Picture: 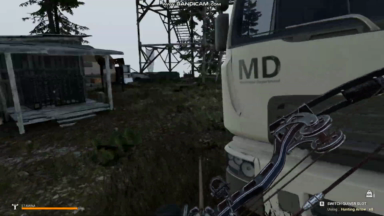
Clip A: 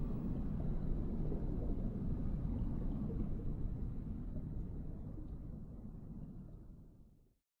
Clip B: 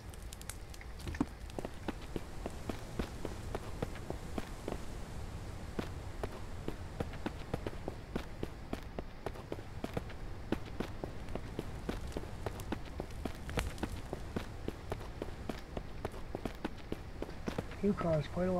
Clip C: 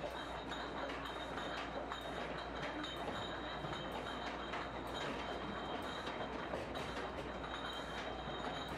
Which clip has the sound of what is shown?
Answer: B